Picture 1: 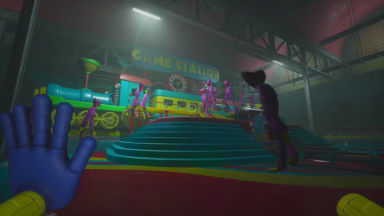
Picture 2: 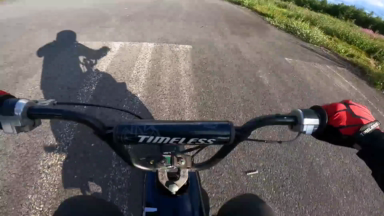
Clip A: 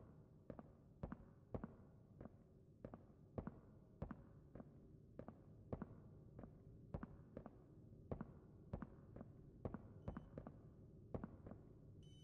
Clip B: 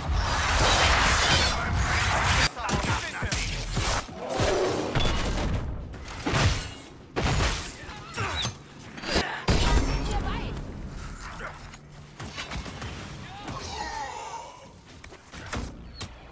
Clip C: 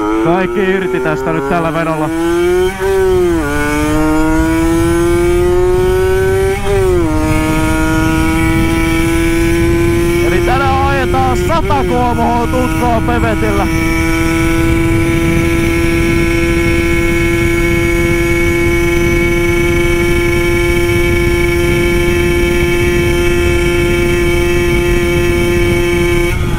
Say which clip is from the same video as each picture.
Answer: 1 A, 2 C